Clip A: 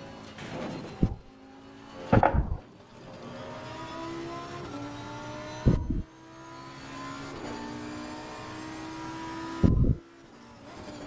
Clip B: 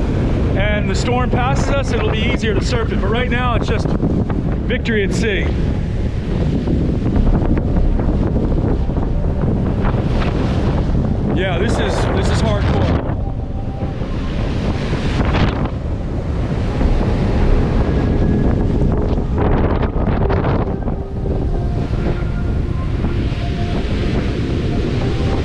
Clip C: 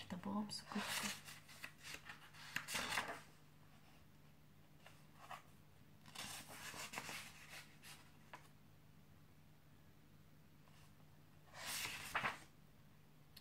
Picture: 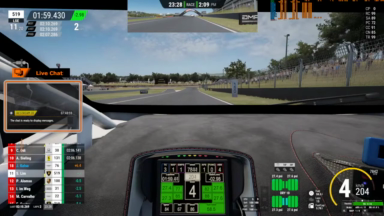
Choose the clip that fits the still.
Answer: A